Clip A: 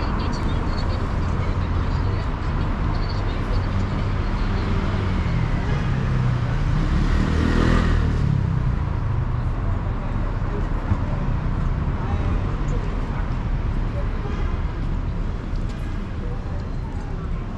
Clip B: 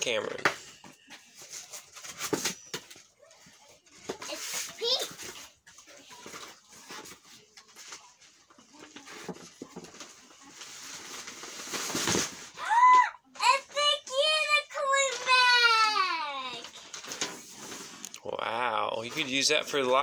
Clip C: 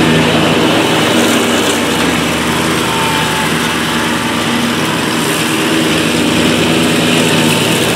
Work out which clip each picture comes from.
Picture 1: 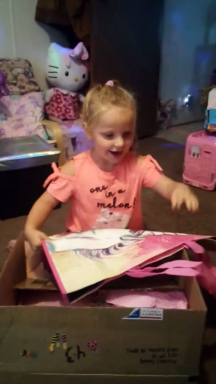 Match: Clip B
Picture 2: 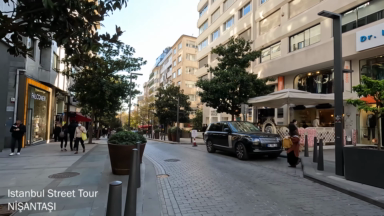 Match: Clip A